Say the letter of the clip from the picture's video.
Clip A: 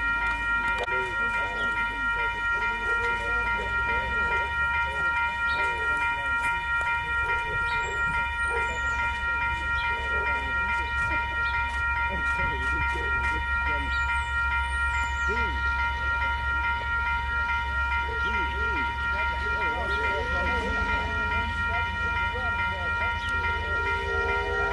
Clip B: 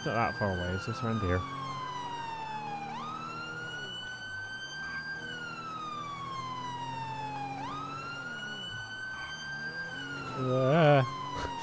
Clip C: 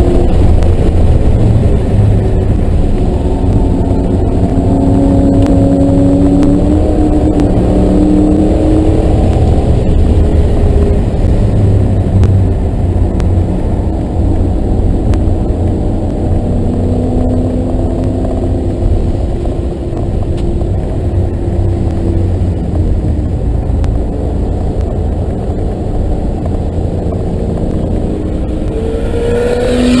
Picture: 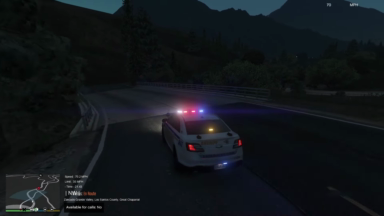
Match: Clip B